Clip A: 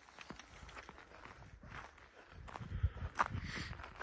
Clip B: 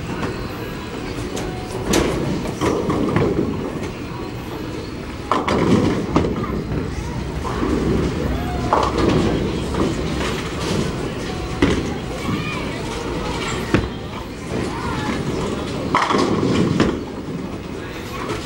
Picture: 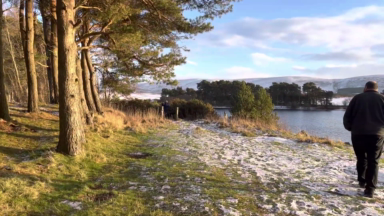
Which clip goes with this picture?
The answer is A